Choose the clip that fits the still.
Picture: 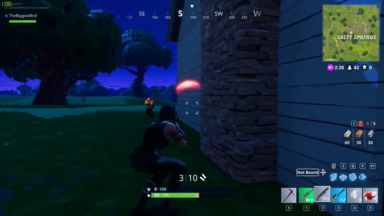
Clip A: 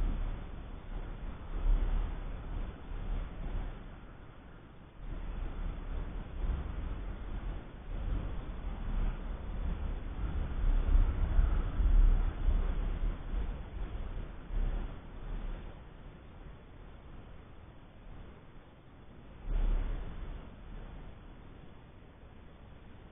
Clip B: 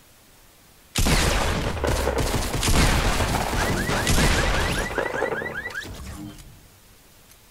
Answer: B